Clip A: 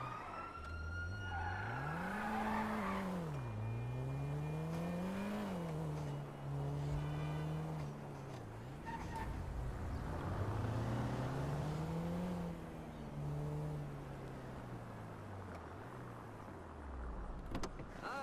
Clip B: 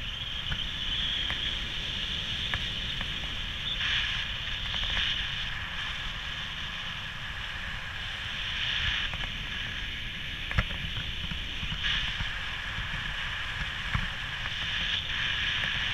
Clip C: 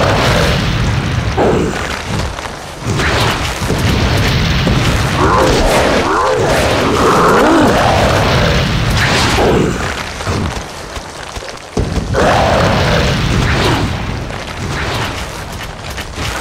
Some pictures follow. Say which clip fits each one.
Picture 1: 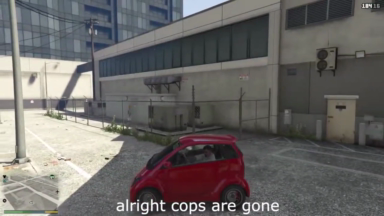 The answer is A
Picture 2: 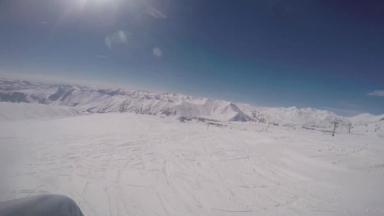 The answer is B